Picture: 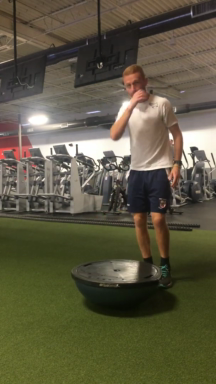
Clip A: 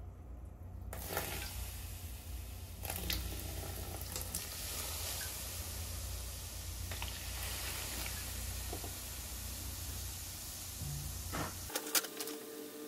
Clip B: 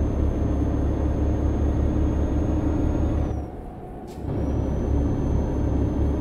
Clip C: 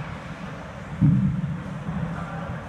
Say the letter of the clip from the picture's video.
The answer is C